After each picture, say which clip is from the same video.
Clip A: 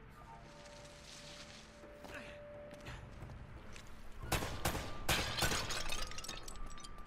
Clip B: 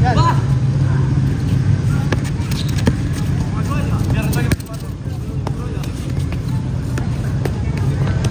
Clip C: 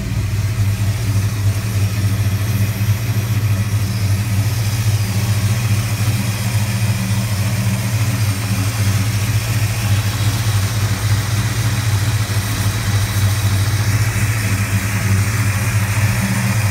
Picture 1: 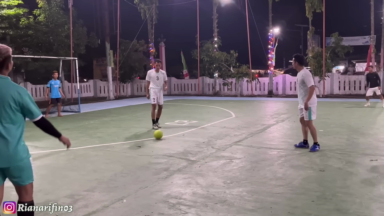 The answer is B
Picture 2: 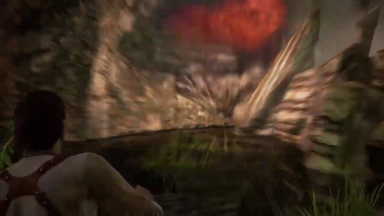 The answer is A